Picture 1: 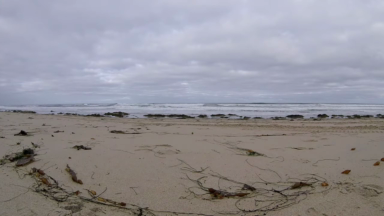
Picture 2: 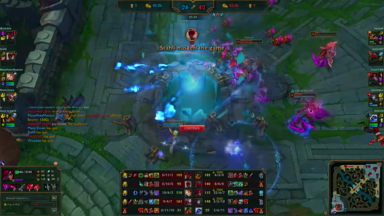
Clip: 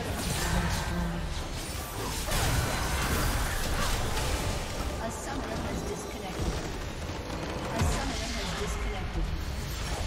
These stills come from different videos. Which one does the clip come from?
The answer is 2